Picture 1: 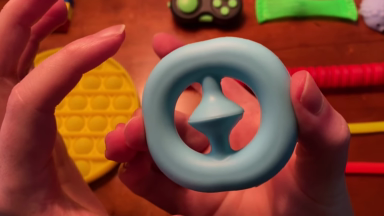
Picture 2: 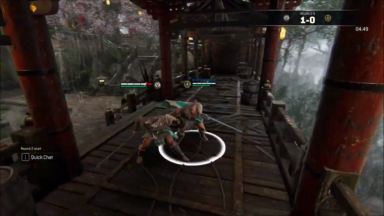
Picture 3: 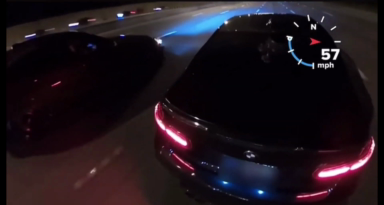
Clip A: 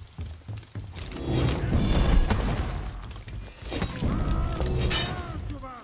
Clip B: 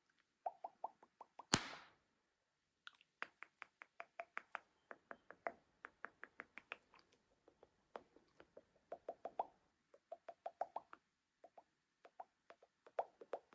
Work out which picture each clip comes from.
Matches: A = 2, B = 1